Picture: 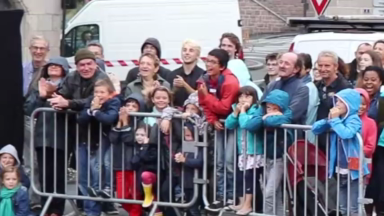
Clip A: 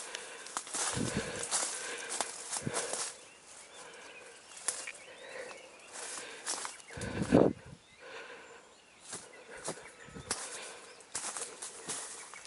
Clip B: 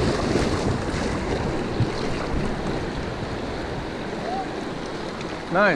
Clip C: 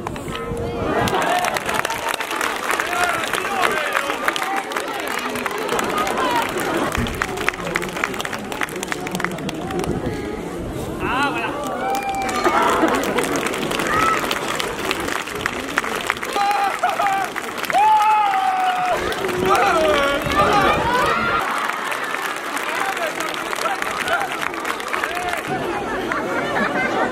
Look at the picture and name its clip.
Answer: C